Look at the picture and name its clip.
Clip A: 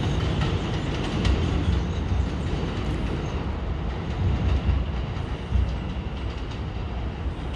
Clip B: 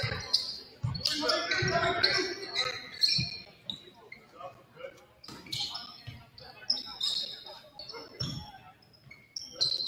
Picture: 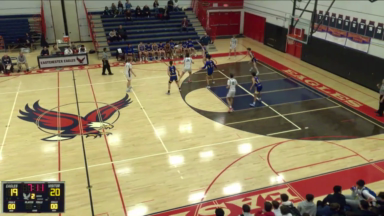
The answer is B